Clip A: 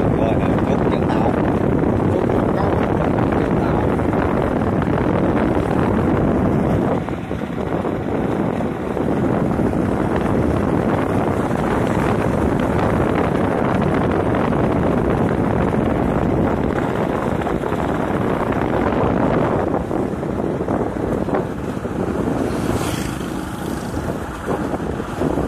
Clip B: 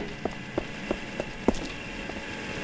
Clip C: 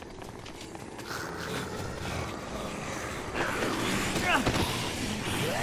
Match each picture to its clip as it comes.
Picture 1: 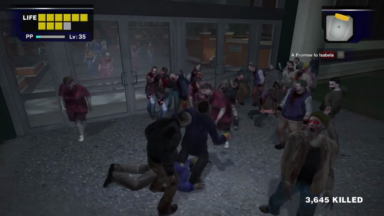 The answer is C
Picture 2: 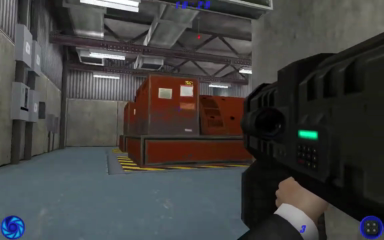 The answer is B